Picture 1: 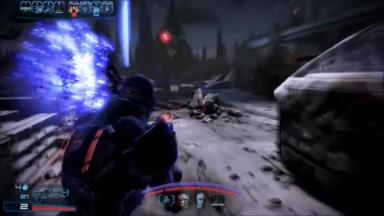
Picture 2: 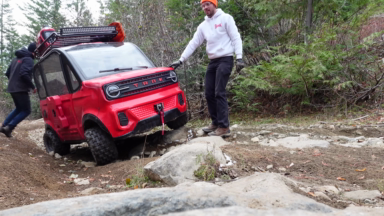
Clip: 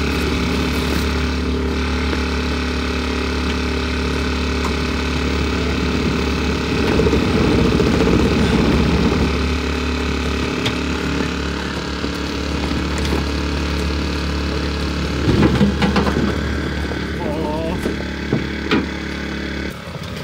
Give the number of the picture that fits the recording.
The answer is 2